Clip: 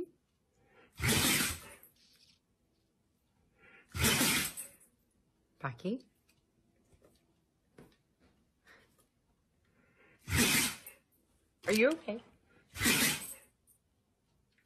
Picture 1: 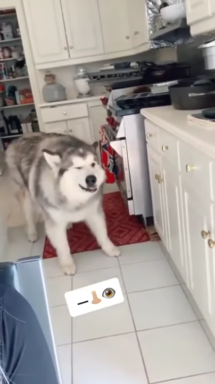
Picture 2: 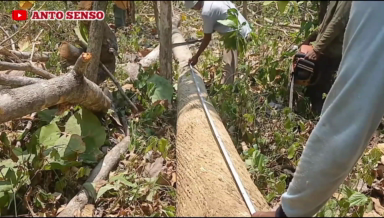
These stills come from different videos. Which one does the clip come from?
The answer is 1